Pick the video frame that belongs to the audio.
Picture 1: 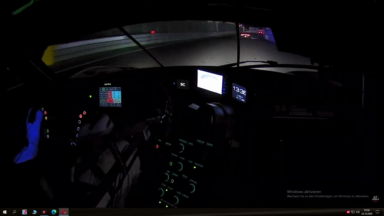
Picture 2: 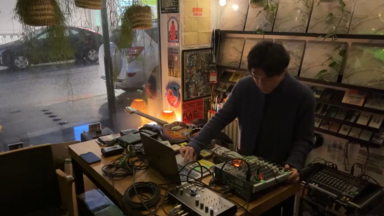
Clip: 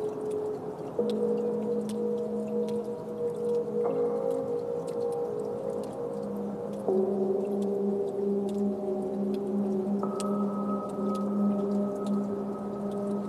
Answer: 2